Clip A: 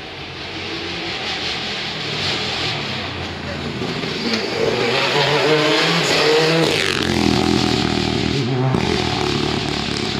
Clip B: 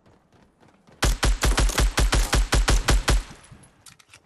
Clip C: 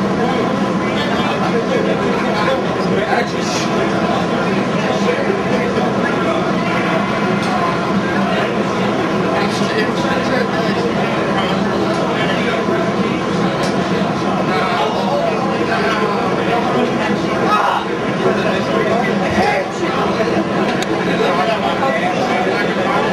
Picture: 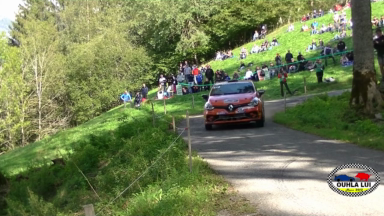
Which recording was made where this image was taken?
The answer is A